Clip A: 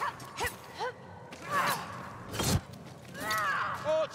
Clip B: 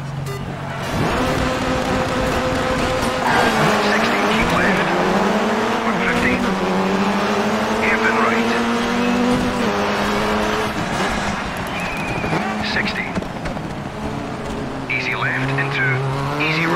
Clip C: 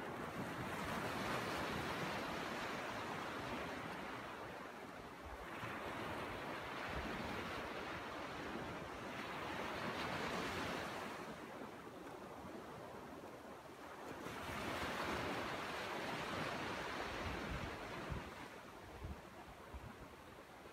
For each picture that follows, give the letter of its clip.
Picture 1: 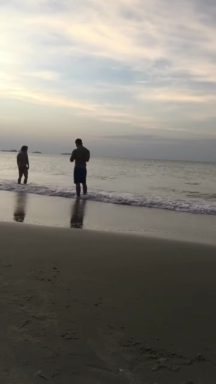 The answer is C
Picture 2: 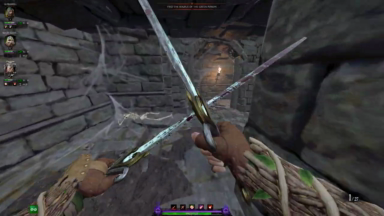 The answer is A